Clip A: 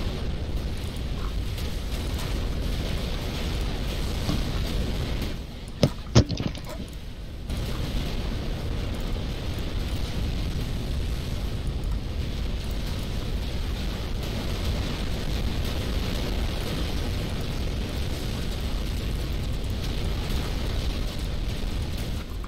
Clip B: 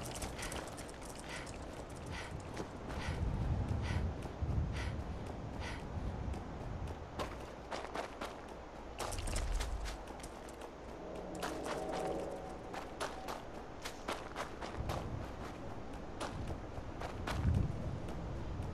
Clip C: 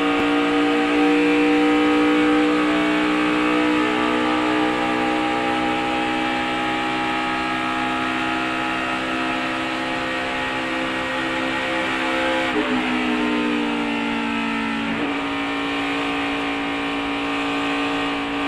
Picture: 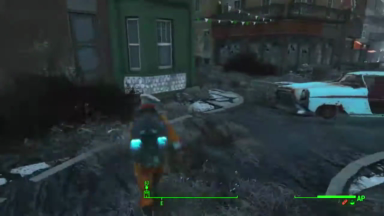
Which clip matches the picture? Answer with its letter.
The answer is B